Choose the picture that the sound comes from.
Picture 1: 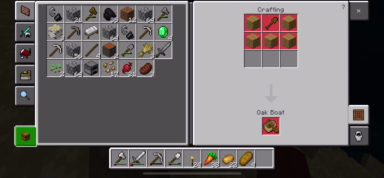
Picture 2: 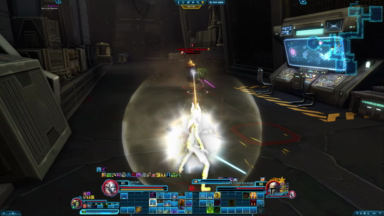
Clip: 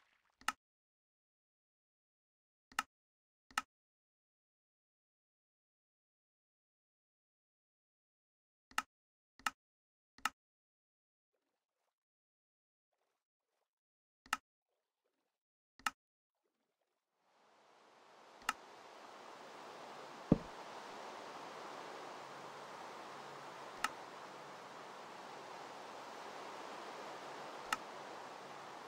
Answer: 1